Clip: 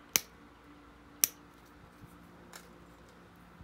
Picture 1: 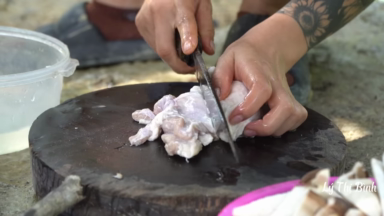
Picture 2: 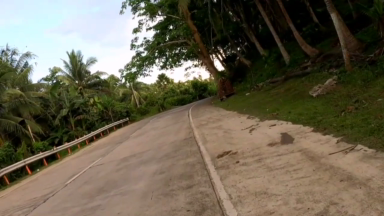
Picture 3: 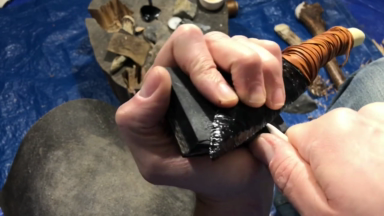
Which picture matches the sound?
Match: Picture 3